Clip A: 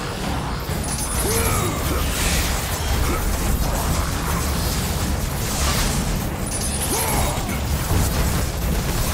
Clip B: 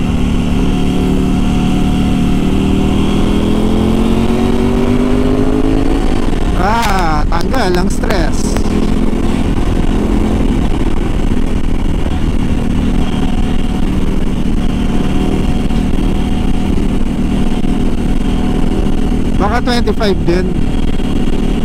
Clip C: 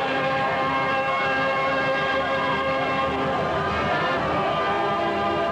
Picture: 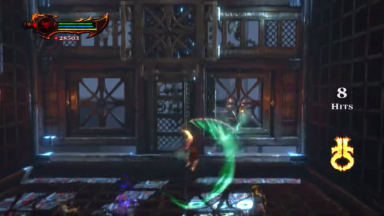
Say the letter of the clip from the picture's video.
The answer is A